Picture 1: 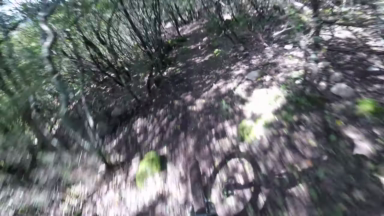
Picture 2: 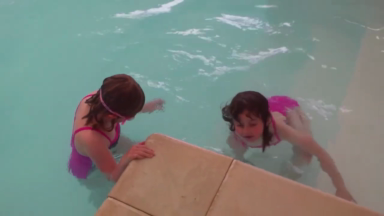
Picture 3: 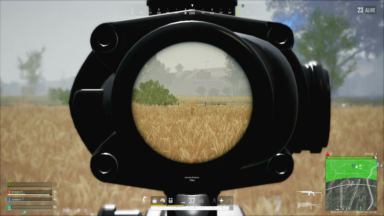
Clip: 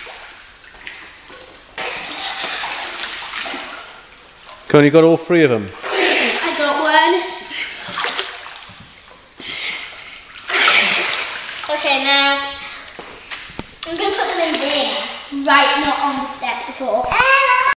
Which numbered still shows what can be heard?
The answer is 2